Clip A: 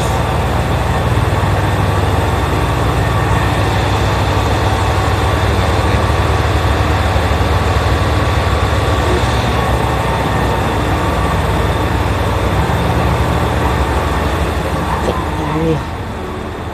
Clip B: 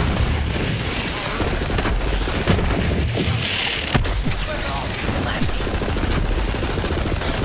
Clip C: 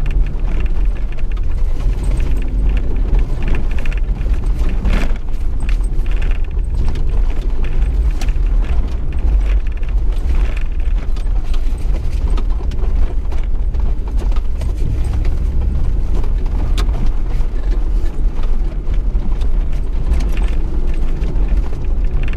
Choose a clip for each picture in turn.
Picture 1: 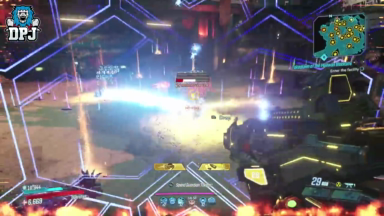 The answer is B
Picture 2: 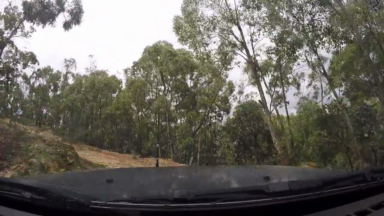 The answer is C